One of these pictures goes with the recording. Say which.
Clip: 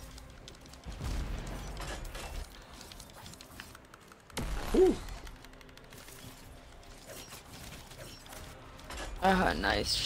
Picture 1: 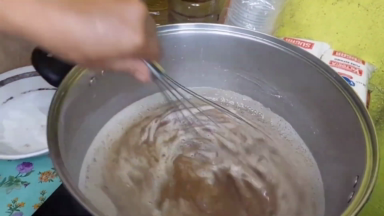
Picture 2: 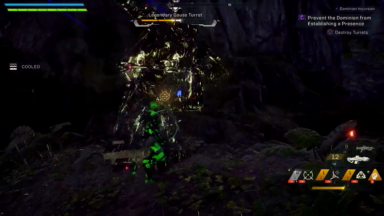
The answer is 2